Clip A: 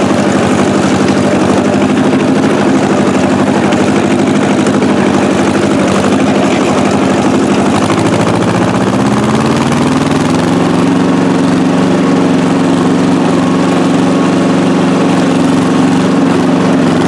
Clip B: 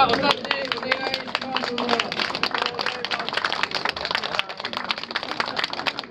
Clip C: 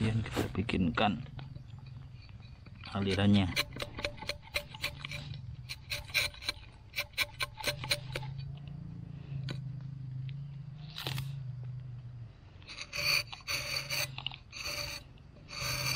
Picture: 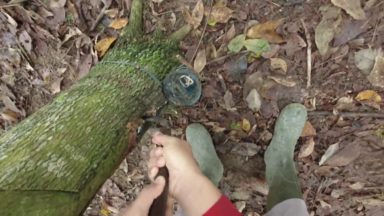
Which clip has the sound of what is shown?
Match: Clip C